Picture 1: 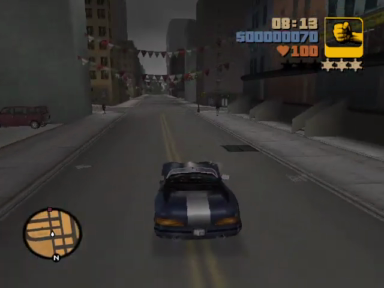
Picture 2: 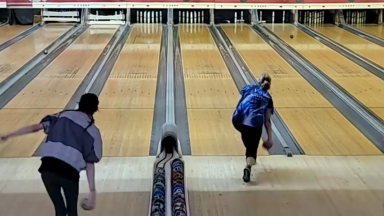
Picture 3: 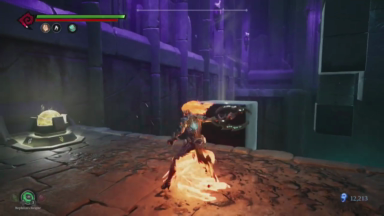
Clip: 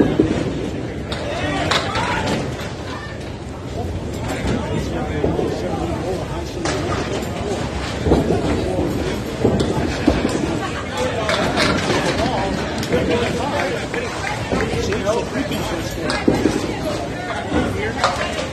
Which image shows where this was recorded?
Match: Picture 2